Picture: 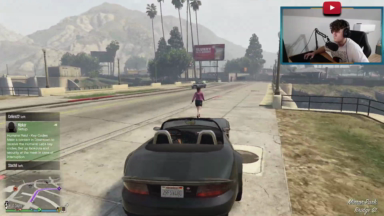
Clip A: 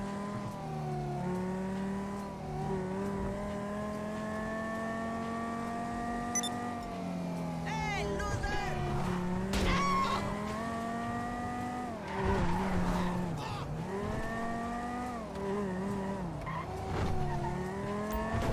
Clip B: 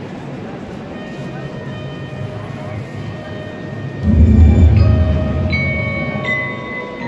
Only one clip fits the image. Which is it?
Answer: A